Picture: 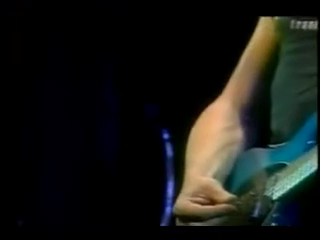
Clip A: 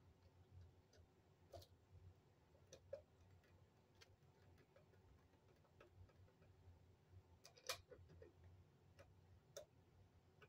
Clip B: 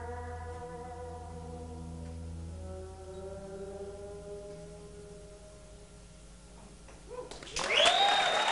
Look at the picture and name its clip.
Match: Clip B